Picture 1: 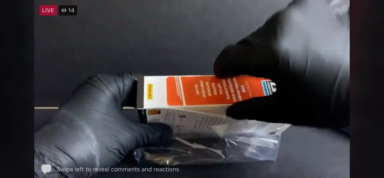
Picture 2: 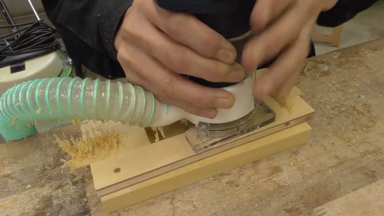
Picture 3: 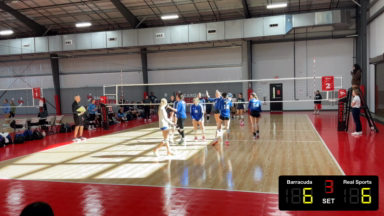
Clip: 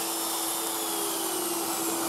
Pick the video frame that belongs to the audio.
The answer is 2